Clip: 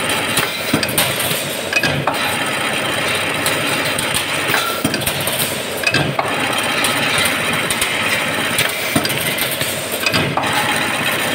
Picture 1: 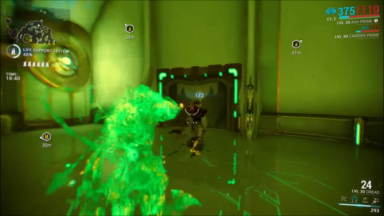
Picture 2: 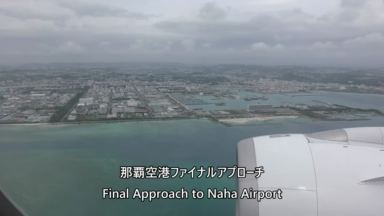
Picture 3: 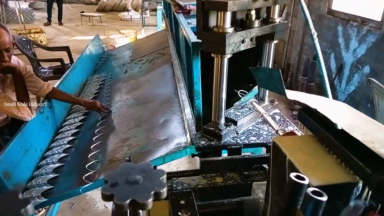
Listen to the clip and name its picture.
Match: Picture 3